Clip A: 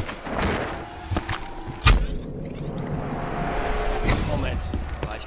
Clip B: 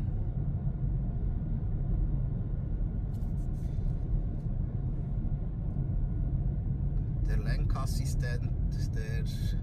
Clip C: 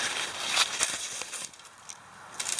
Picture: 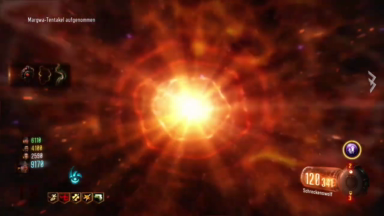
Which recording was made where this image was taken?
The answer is A